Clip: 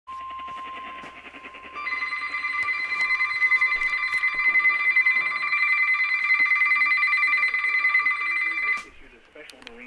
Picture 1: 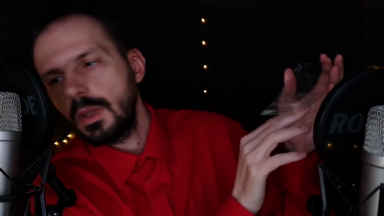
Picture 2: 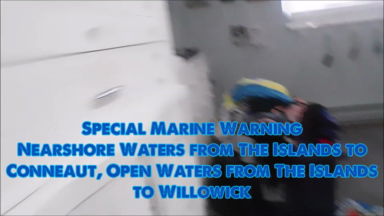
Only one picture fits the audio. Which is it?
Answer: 2